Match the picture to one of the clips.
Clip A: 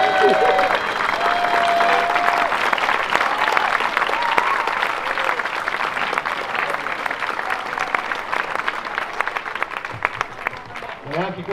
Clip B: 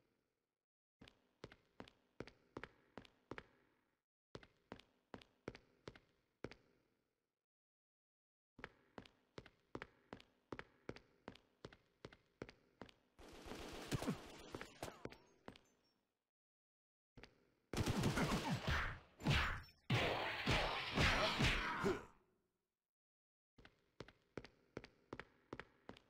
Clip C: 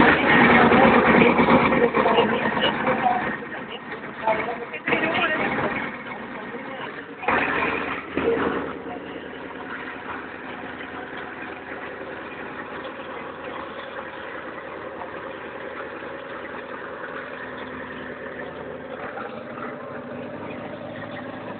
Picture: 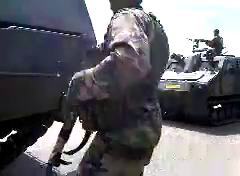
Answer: C